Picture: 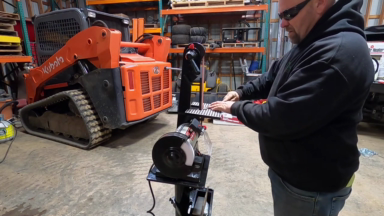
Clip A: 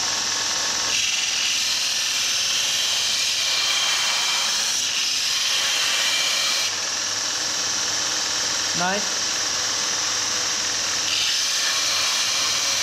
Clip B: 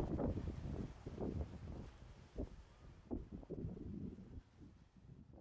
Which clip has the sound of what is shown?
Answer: A